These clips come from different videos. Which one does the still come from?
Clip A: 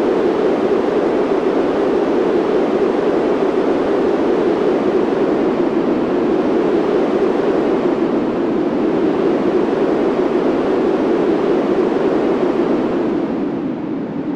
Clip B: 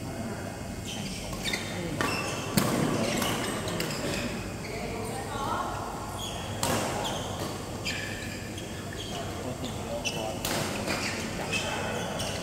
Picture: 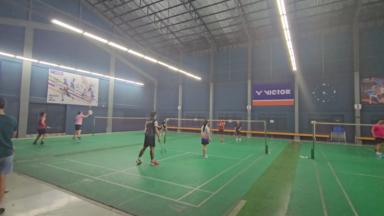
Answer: B